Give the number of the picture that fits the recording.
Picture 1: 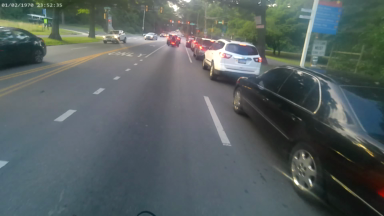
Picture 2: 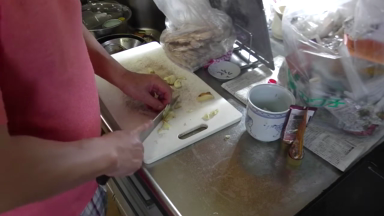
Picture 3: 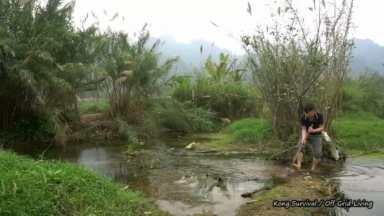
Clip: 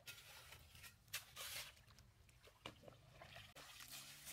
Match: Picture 3